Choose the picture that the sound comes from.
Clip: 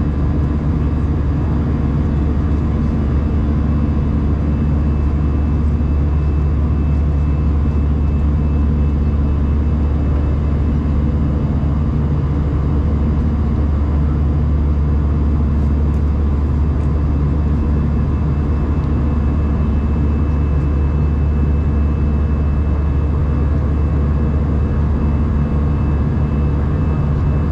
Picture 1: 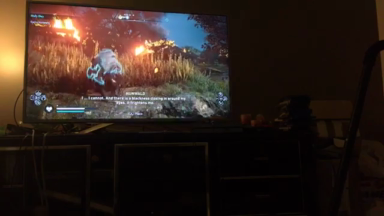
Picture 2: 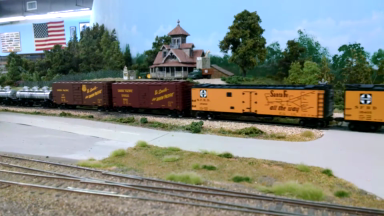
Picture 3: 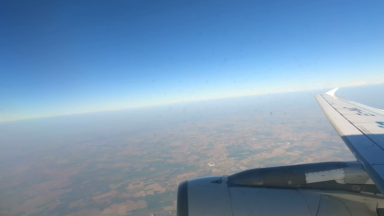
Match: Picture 3